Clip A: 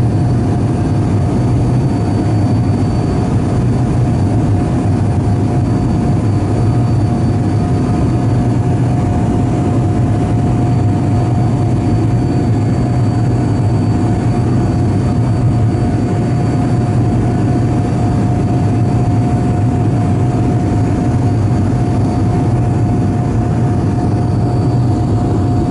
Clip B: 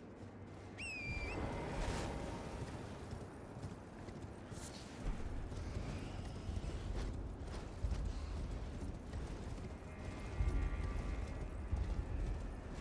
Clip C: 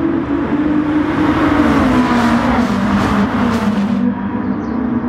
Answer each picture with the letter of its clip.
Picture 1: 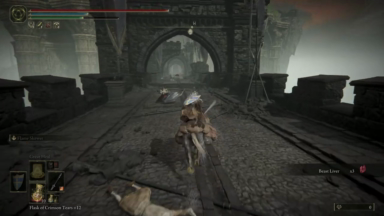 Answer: B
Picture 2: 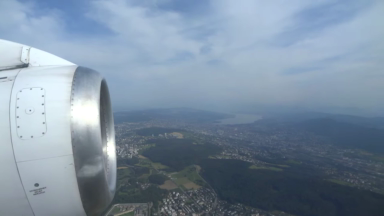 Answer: A